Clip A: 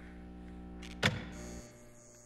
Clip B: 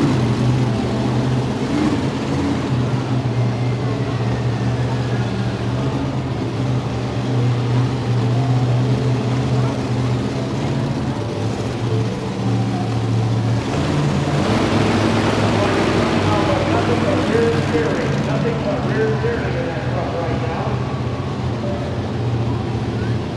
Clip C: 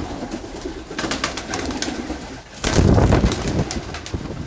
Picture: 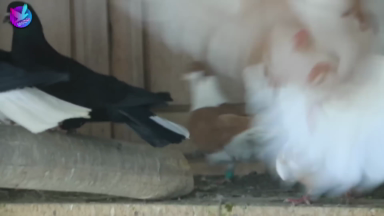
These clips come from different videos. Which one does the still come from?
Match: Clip C